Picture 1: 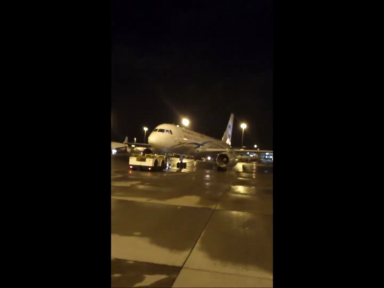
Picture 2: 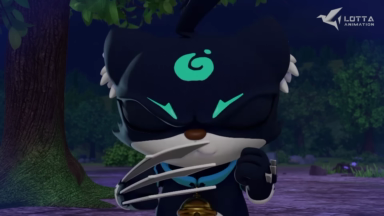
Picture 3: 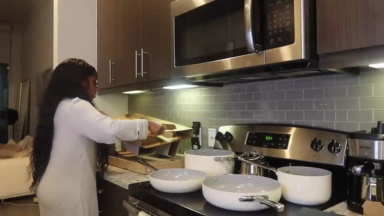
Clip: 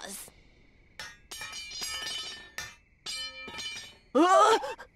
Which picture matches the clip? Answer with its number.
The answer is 2